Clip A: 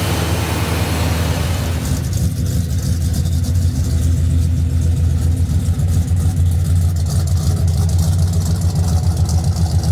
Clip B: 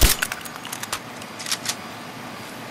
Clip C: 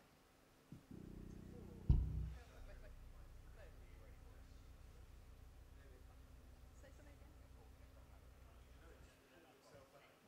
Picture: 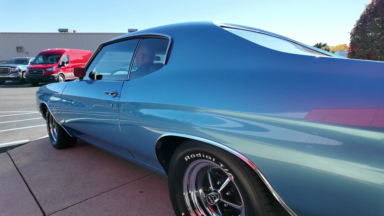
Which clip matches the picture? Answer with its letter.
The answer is A